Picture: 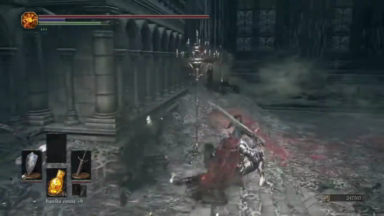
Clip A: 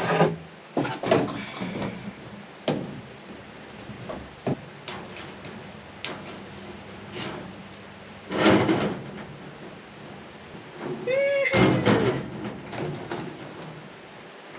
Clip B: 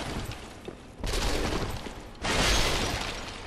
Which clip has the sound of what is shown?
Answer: B